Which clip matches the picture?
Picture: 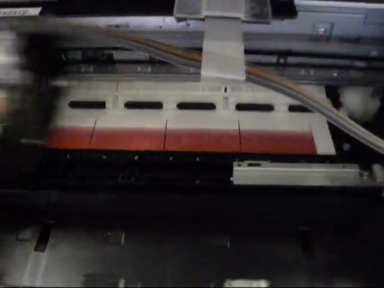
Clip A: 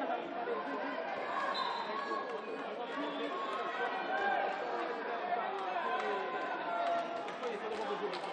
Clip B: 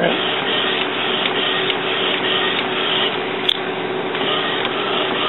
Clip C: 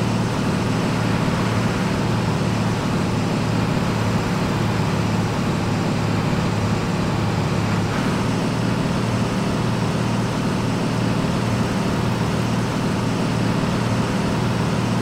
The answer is B